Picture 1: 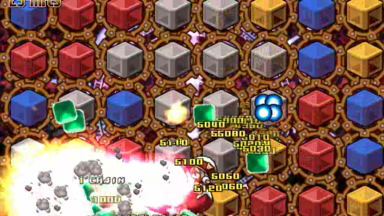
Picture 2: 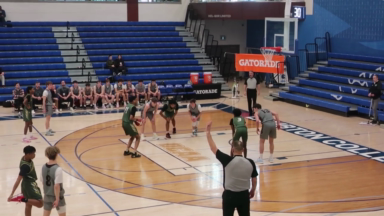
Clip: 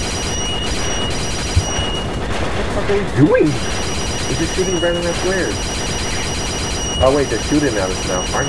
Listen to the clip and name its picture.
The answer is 1